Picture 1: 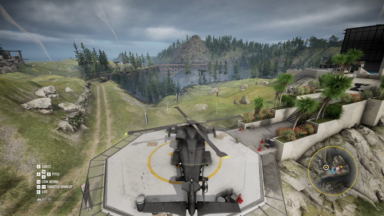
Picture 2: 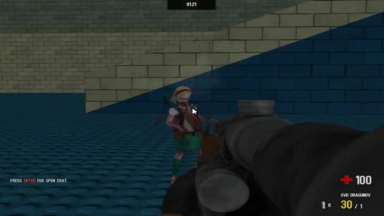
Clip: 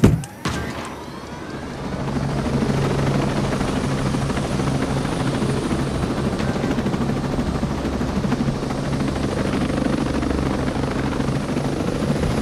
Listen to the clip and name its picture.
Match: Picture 1